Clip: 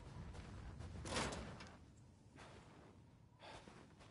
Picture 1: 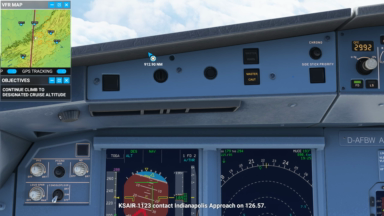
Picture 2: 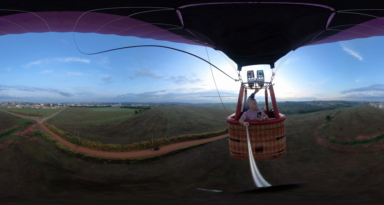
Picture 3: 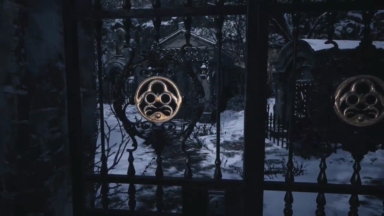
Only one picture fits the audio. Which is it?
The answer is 3